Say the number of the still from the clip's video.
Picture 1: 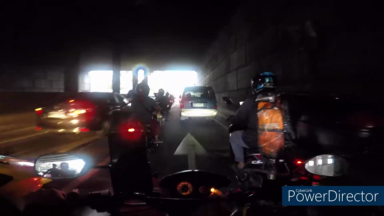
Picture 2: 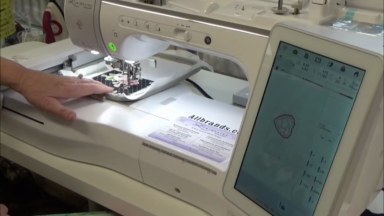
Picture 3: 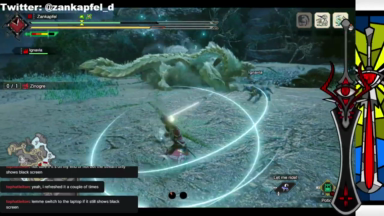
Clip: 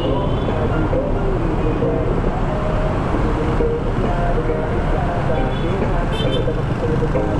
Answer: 1